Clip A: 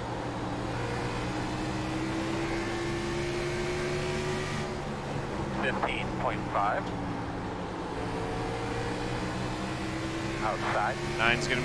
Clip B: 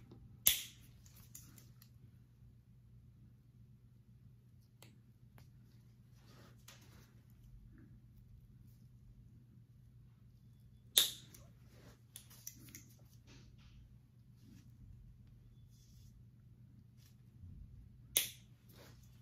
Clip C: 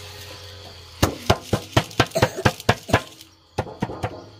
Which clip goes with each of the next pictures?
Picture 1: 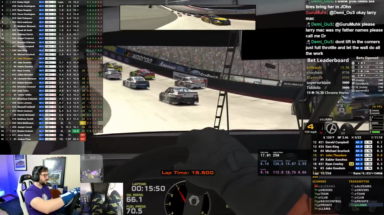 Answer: A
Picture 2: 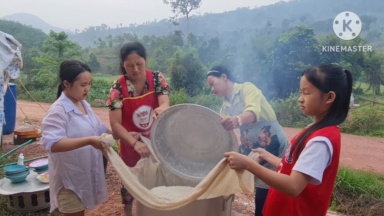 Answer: C